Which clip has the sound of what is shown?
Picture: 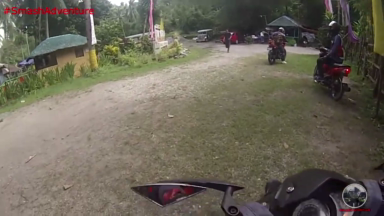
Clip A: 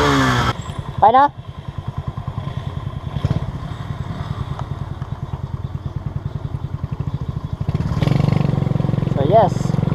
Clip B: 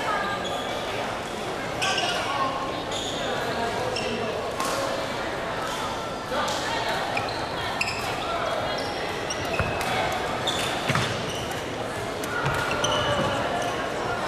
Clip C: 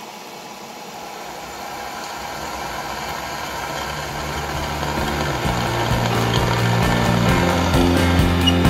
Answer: A